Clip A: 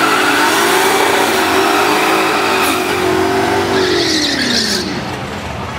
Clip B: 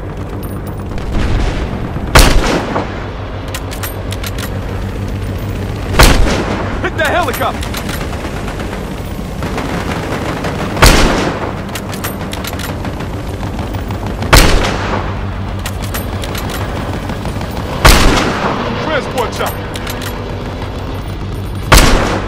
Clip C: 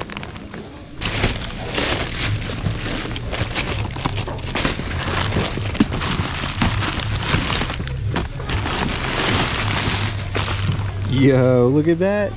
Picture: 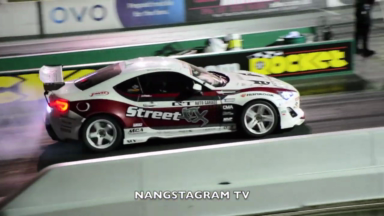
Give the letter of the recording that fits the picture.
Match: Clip A